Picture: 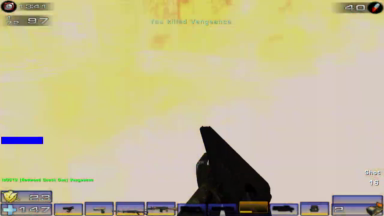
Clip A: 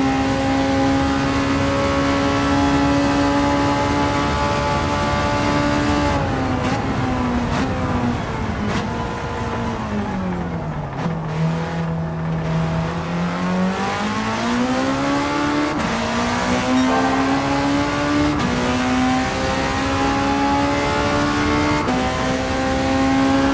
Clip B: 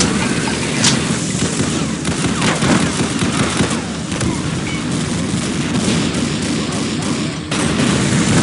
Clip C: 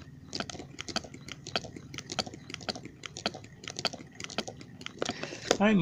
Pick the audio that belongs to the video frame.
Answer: B